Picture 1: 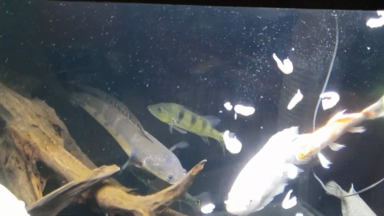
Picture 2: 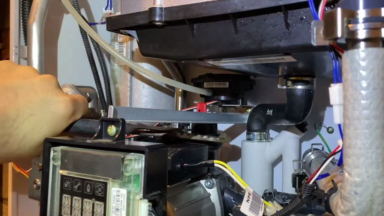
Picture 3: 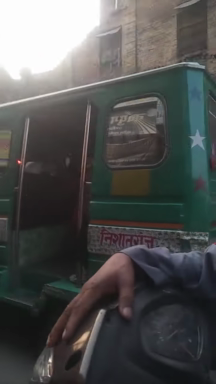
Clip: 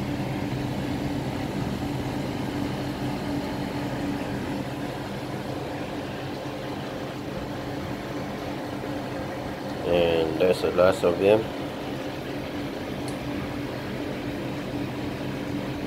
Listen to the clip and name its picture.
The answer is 1